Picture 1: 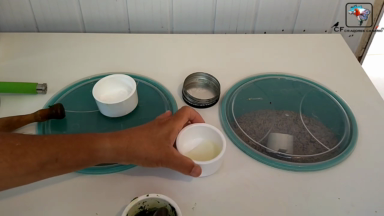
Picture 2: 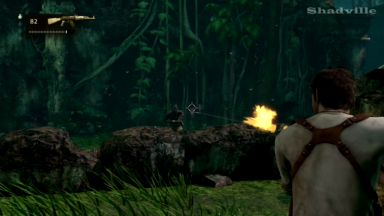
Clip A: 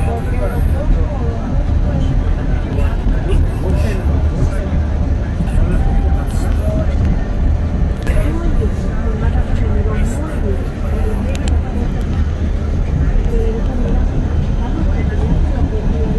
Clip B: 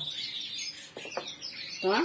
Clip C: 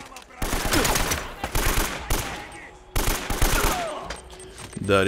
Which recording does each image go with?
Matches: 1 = B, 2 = C